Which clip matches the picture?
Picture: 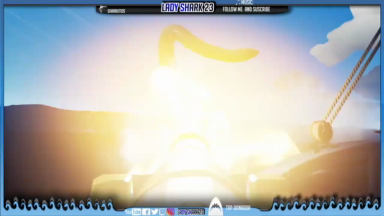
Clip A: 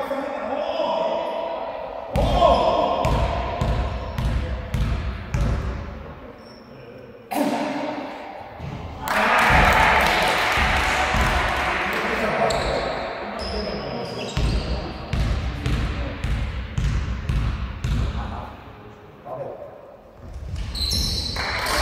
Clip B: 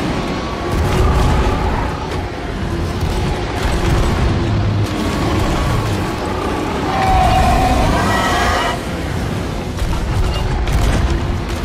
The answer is B